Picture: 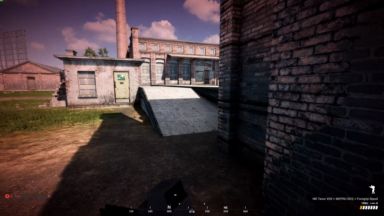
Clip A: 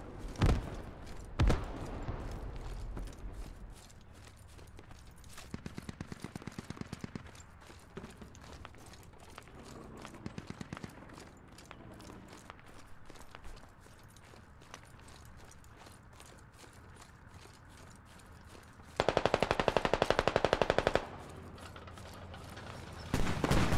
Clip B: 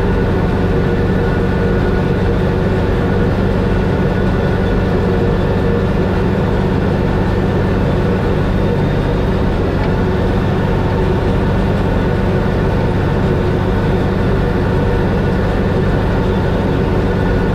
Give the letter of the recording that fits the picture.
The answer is A